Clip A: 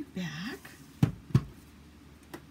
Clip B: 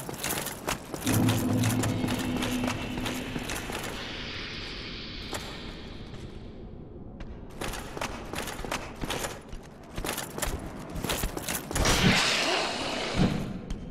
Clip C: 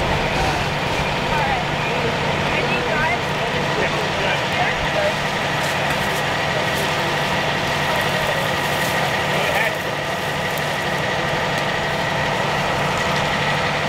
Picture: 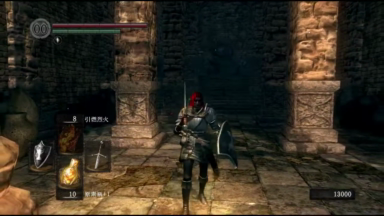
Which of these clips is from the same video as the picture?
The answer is B